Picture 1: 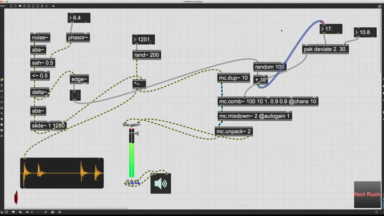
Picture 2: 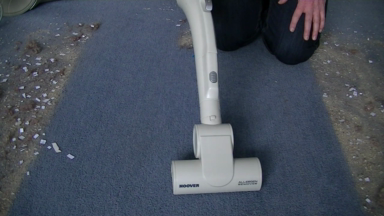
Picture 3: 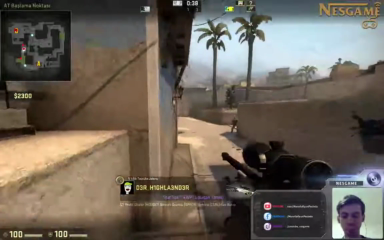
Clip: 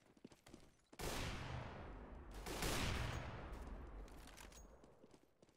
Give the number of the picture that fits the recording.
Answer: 3